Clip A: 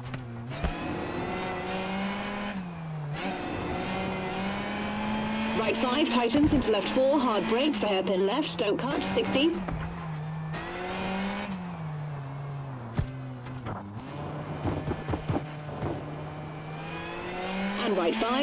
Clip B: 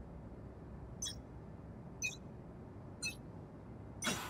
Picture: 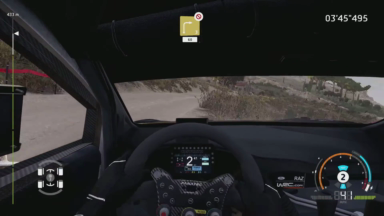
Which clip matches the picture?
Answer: A